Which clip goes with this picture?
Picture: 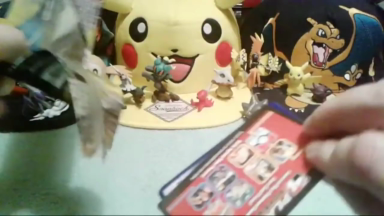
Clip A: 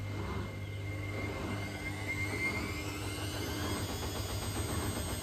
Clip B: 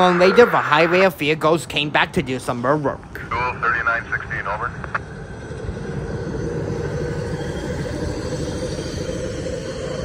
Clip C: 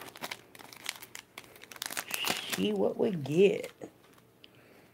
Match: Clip C